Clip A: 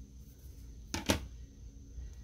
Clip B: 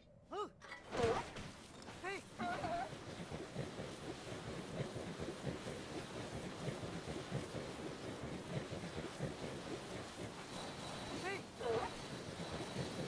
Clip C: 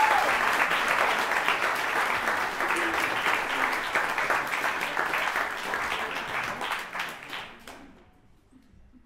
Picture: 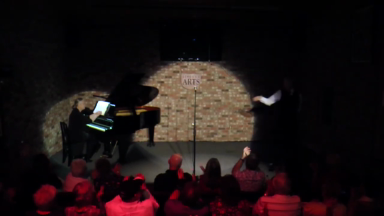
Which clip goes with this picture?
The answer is C